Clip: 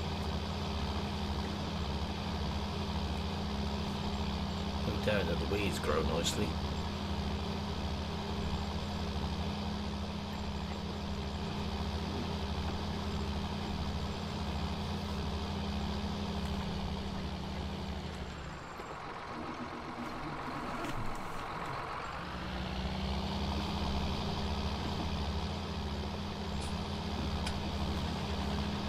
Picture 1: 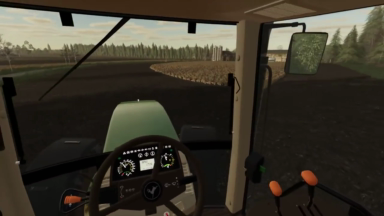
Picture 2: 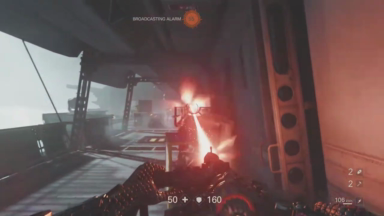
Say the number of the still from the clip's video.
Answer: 1